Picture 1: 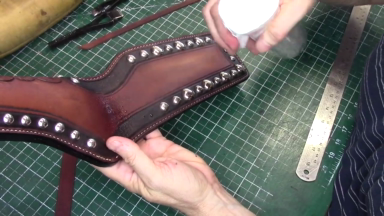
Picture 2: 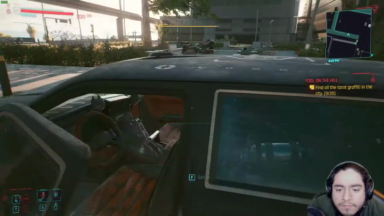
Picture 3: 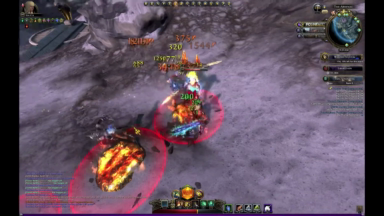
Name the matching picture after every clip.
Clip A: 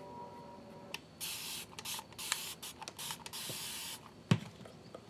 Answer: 1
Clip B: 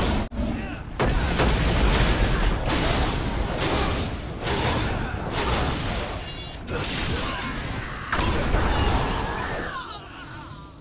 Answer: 3